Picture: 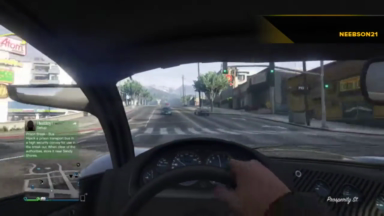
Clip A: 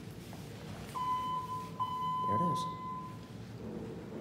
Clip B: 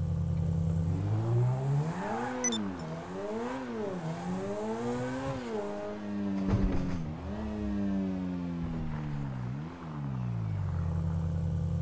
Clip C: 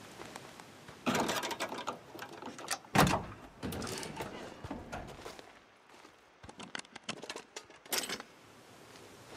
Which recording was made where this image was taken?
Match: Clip B